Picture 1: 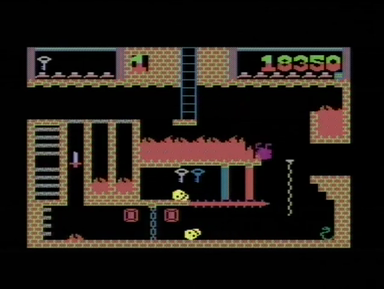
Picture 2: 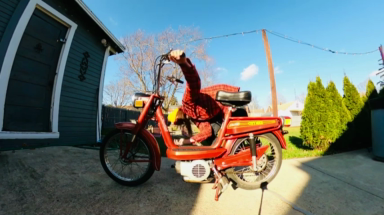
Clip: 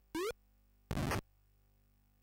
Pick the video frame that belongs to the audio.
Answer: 1